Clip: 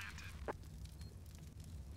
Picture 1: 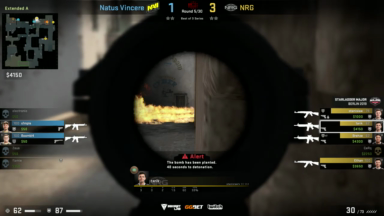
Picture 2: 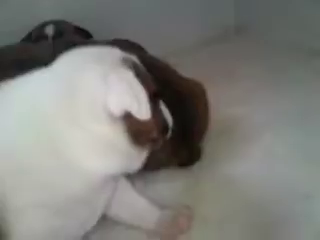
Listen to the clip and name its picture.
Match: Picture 1